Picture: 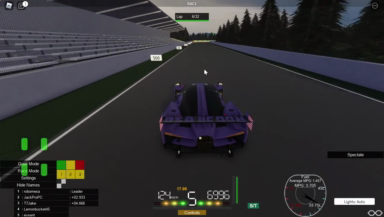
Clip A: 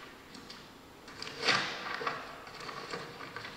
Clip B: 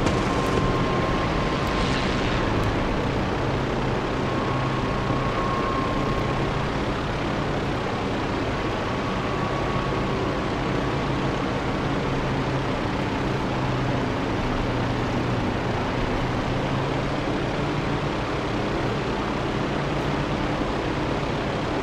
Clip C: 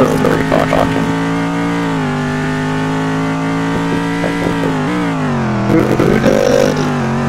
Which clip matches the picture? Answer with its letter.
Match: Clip C